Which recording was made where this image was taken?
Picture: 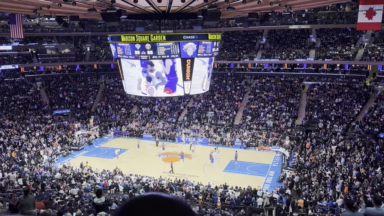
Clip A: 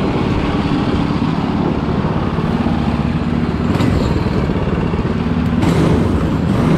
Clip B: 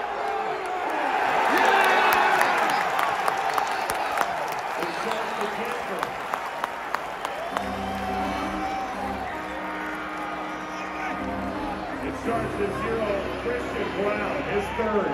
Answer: B